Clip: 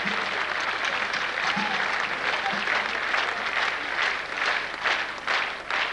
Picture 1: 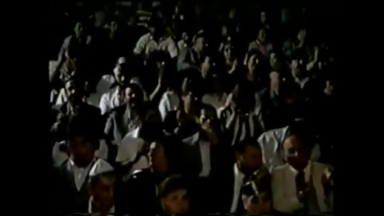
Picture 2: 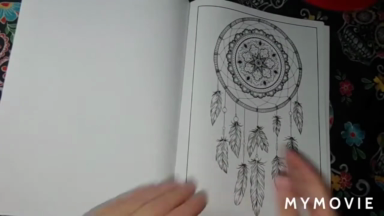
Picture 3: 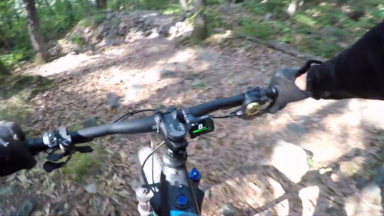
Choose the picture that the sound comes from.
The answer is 1